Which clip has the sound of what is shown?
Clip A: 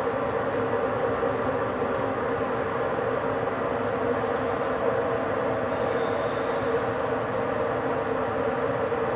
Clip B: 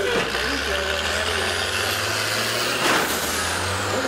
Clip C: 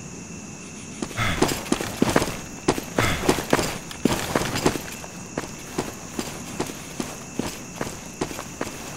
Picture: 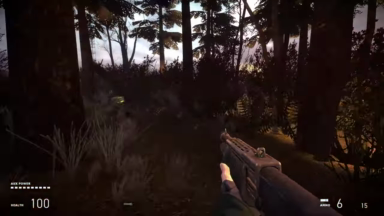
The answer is C